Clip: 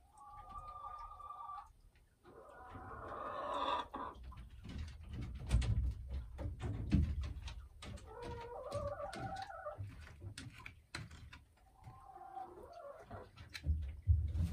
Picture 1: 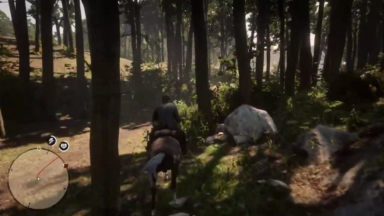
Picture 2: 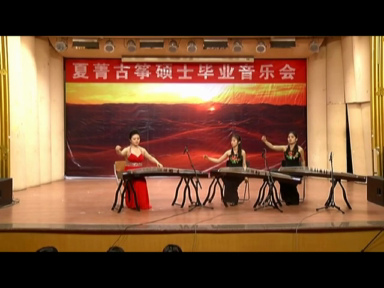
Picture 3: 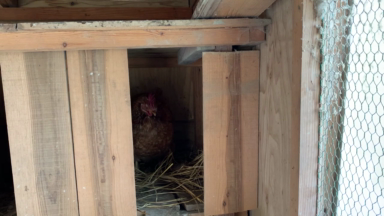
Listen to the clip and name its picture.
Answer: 3